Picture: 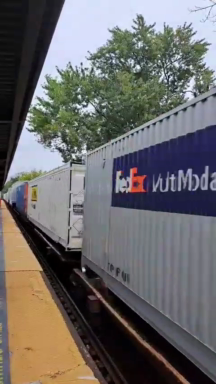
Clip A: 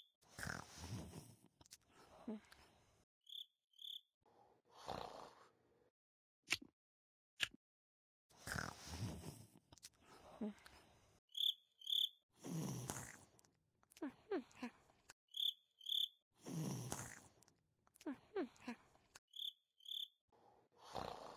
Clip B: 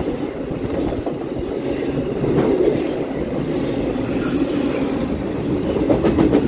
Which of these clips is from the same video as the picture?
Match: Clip B